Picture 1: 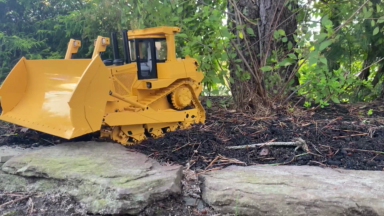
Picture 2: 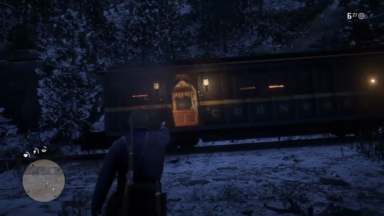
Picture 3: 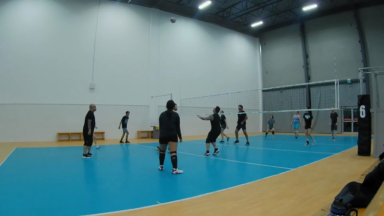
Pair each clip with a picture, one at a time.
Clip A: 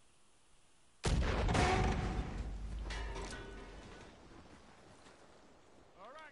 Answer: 2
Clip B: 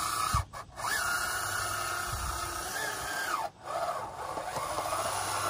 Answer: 1